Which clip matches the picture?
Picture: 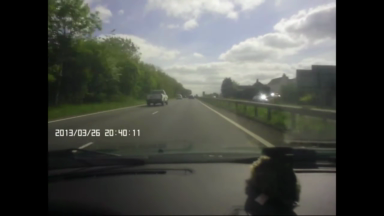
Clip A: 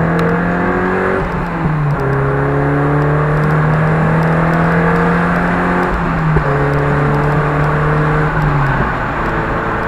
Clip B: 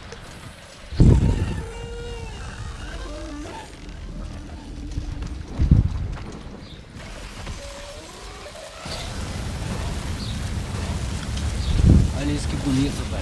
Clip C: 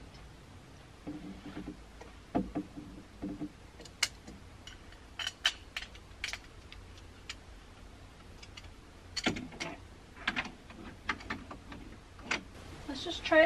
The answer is A